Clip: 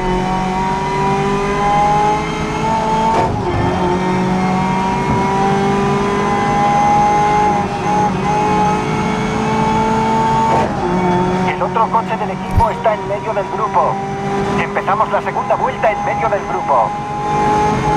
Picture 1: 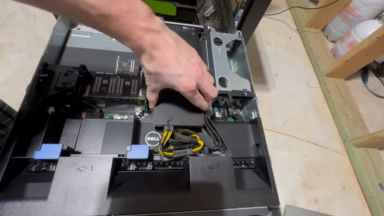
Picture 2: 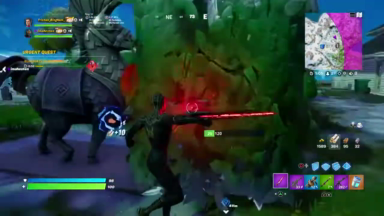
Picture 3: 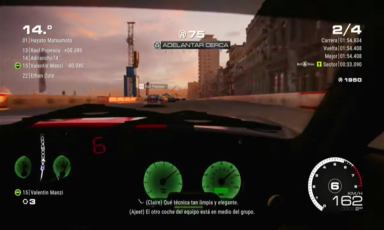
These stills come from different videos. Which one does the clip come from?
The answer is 3